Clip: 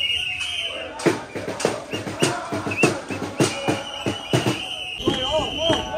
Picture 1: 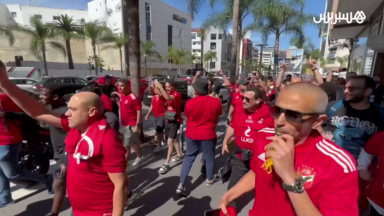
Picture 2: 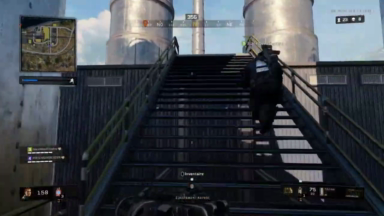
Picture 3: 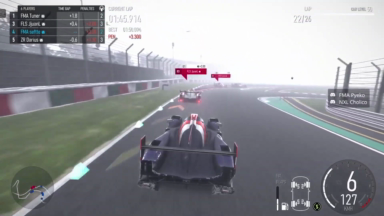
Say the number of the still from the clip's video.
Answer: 1